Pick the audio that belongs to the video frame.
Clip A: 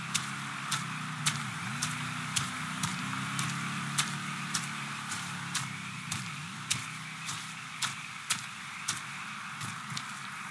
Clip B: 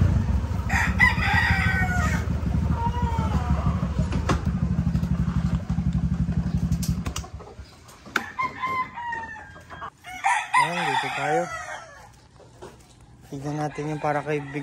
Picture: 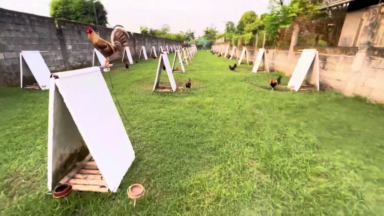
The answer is B